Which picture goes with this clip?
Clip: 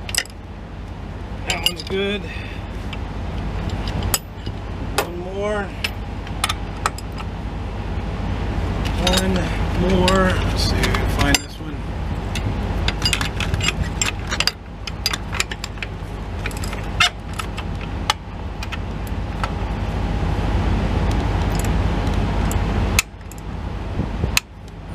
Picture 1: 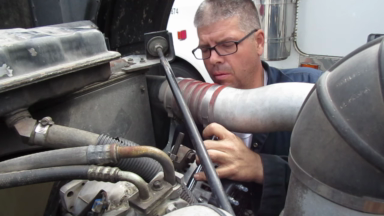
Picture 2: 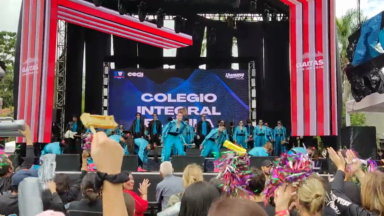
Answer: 1